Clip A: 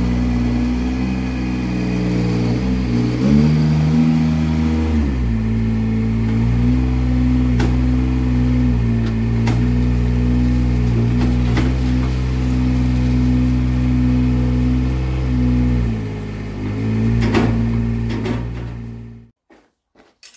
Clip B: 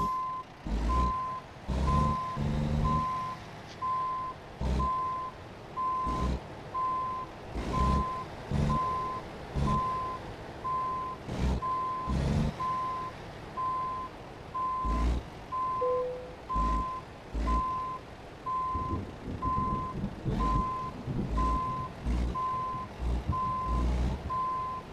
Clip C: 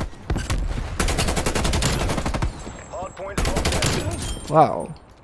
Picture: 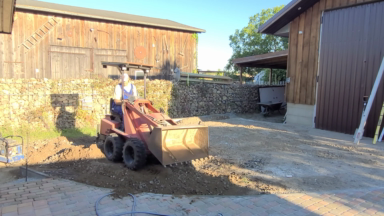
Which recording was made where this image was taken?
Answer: A